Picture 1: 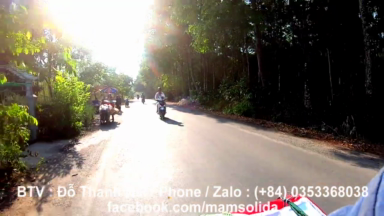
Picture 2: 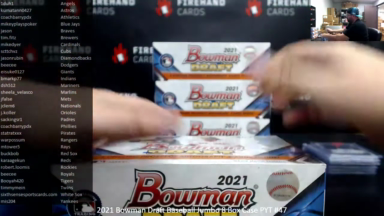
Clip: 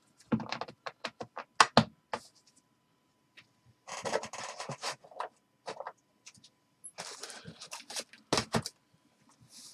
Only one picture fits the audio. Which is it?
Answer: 2